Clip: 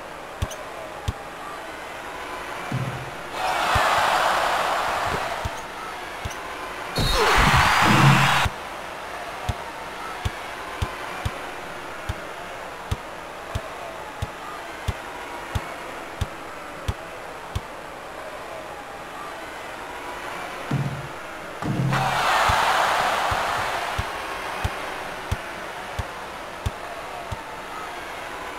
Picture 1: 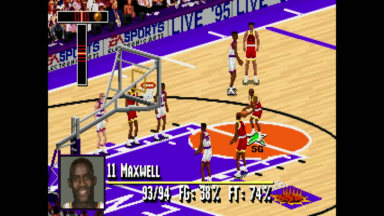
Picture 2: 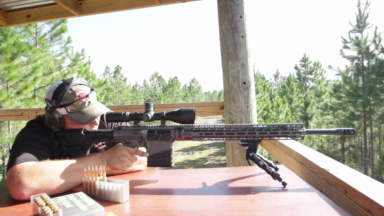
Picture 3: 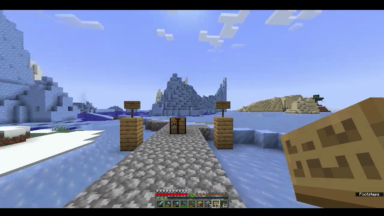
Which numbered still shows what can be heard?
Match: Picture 1